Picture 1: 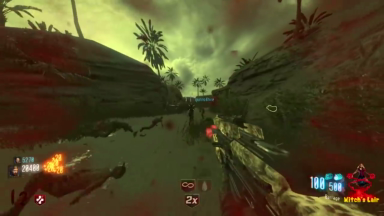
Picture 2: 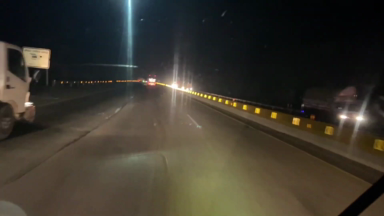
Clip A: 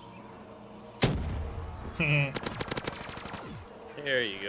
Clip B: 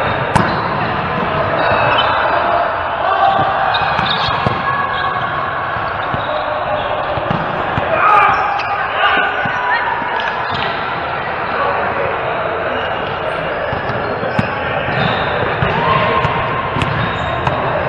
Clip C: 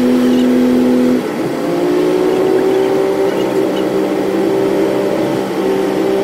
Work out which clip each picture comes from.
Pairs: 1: A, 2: C